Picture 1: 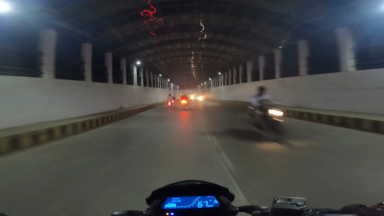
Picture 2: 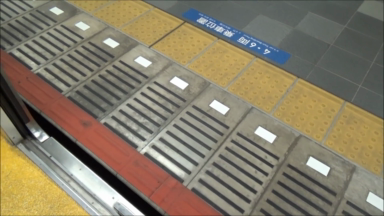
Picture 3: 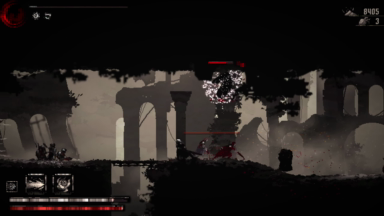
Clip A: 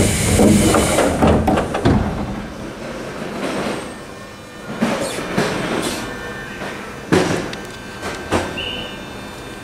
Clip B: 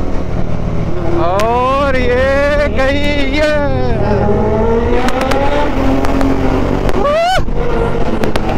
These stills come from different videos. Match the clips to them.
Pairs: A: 2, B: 1